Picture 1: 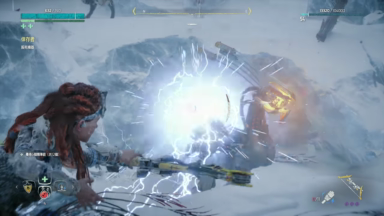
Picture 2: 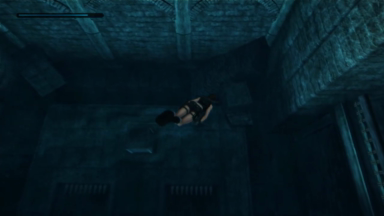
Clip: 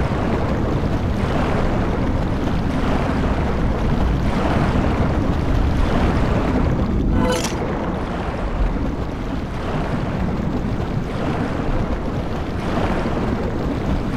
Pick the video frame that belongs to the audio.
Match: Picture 2